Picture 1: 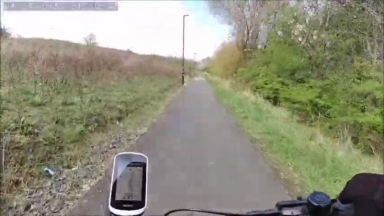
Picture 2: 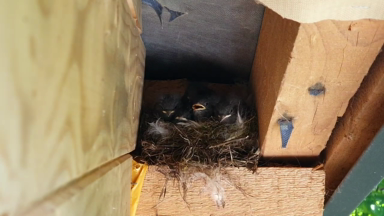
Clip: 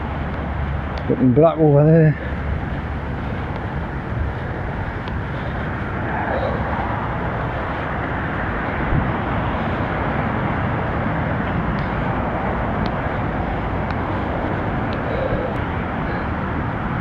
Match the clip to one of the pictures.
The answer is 1